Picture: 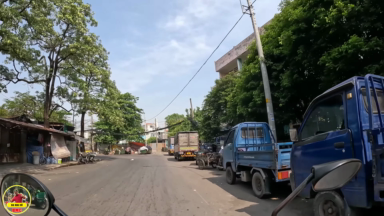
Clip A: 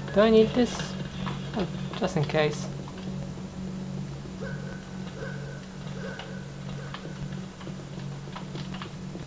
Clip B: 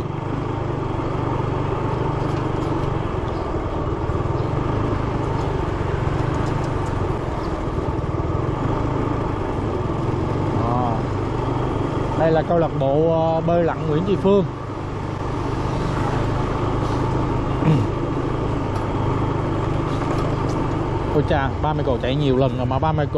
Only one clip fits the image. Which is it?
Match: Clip B